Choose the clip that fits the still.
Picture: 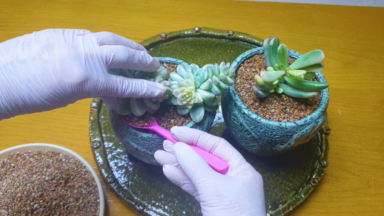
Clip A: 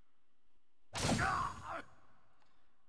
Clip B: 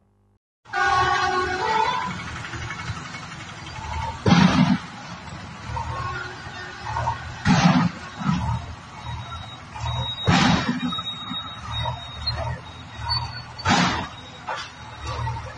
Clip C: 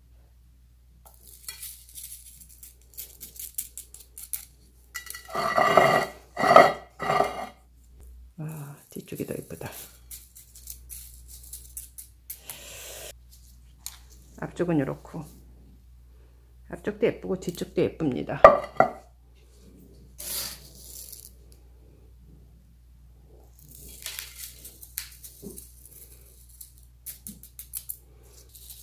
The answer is C